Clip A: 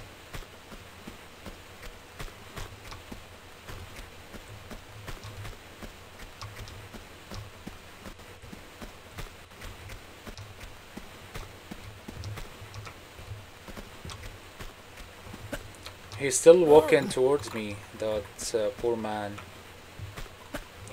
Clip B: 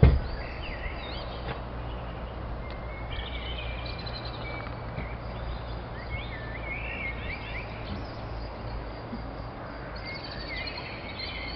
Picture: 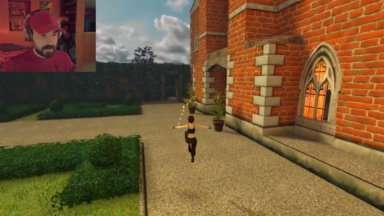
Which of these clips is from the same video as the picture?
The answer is A